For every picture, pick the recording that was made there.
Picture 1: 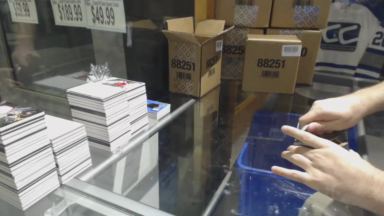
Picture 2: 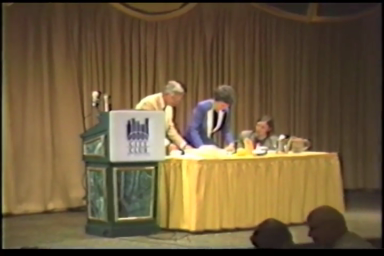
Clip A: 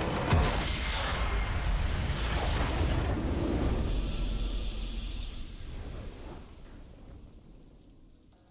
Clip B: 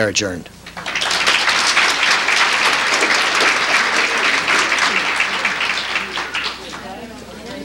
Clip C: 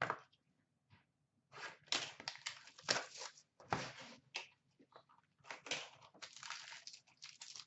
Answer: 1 C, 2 B